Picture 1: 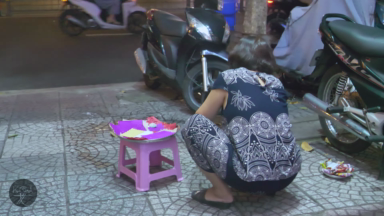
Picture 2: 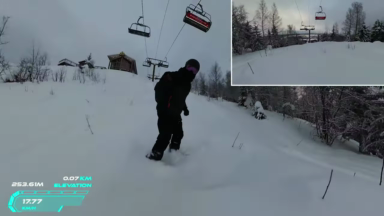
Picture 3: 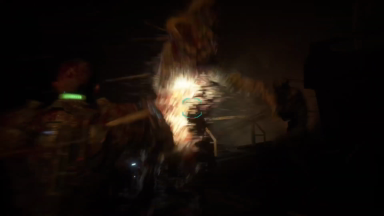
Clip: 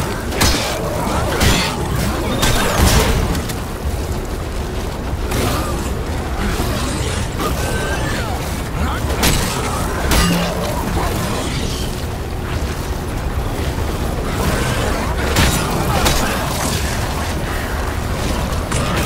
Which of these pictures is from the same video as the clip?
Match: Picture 3